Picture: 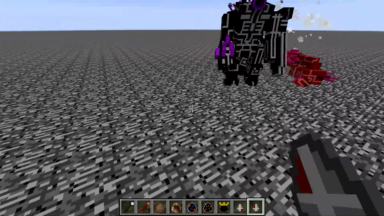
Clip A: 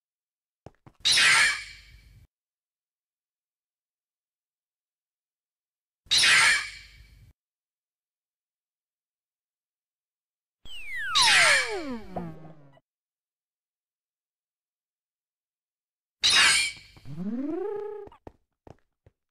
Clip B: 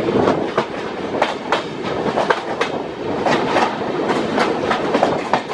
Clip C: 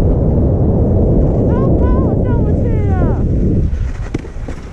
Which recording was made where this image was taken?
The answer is A